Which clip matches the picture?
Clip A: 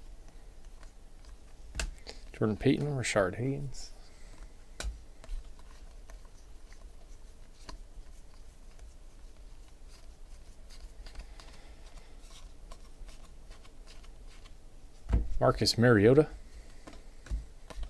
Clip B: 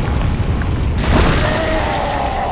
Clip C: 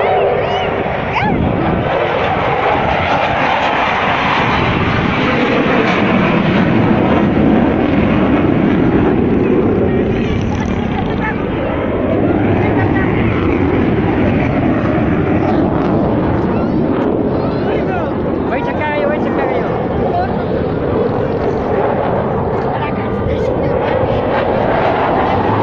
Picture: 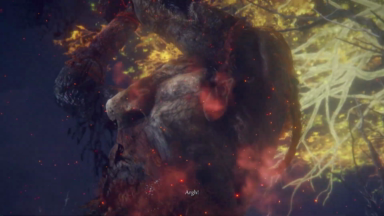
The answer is B